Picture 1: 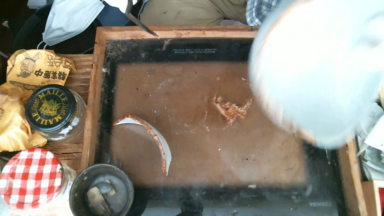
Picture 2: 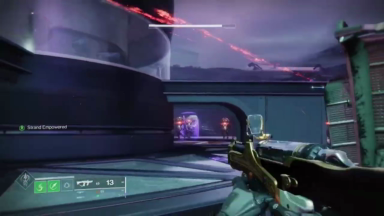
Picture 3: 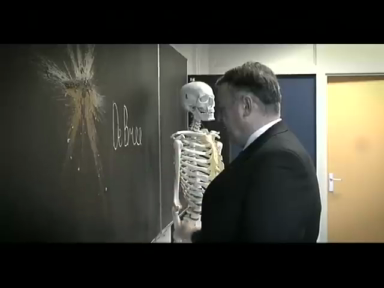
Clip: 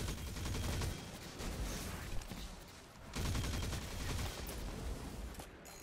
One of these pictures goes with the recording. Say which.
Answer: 2